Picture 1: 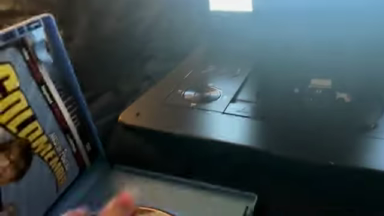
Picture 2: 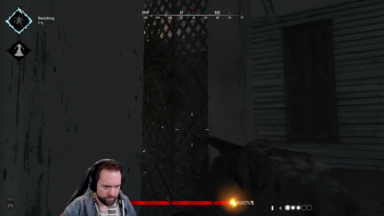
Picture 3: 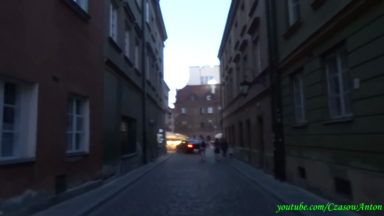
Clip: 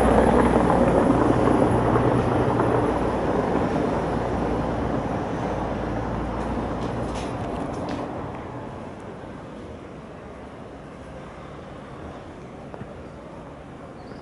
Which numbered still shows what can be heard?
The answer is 3